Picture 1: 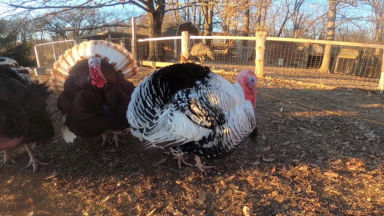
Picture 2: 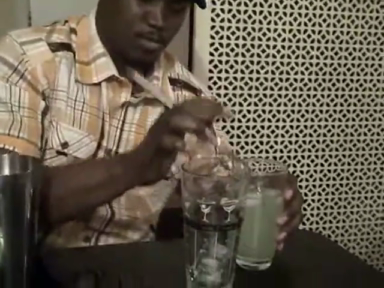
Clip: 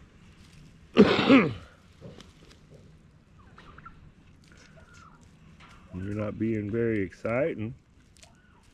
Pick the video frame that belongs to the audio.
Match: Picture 1